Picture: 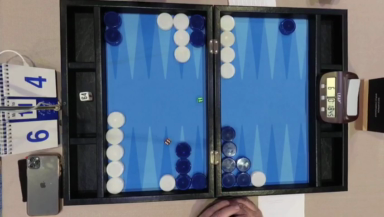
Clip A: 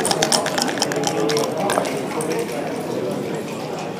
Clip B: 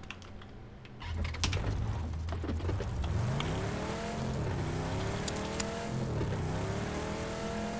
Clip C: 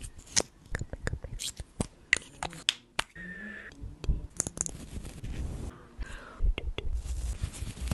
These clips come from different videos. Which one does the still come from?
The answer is A